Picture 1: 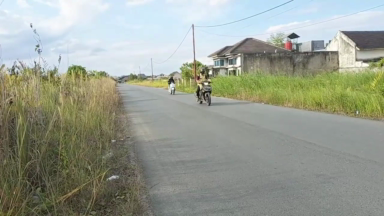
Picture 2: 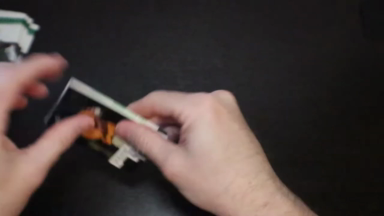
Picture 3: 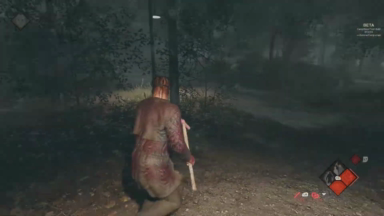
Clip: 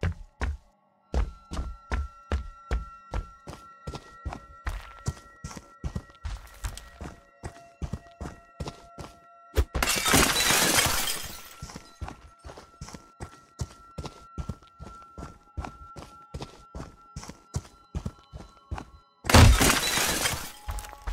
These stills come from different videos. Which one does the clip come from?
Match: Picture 3